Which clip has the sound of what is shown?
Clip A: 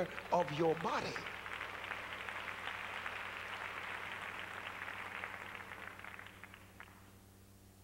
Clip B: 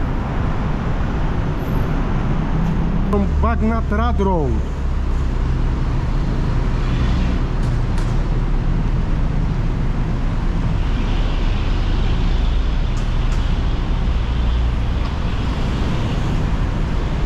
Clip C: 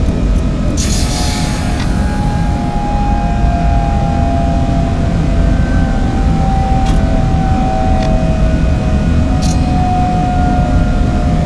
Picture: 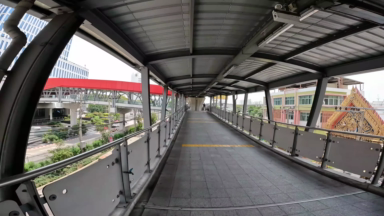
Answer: B